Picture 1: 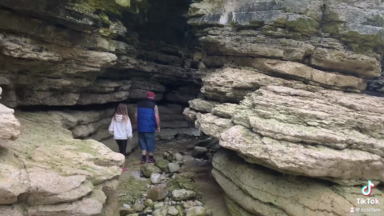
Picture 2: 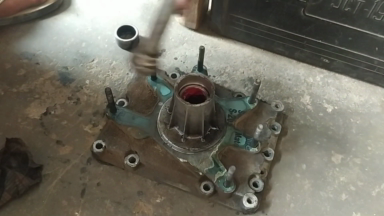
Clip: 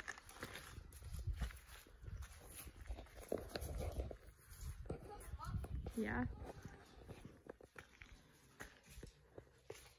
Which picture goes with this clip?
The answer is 1